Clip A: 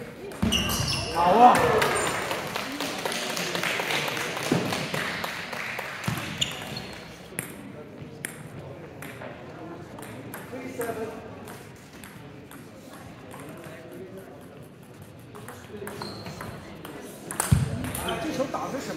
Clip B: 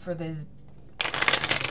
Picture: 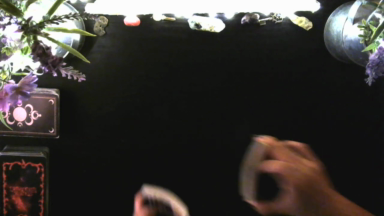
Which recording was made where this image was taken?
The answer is B